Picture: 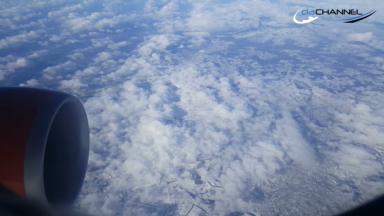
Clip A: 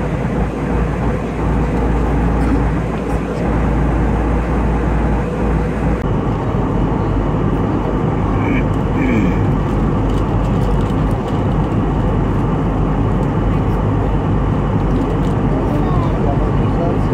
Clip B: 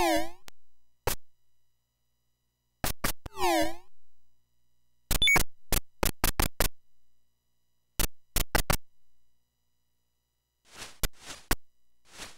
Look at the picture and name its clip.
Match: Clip A